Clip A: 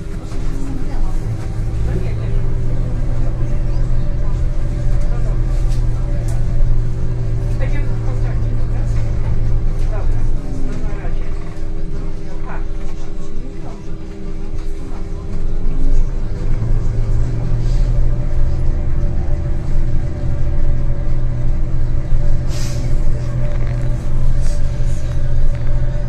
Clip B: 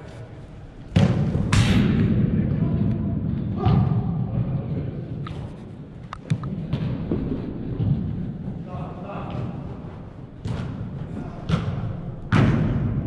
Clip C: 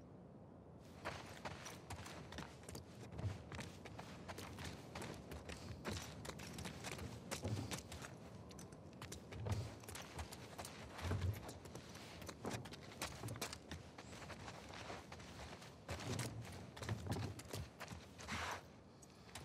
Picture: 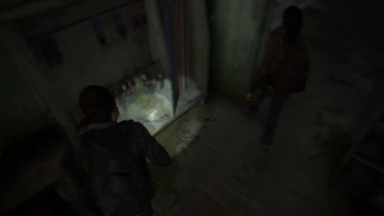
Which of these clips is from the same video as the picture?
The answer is C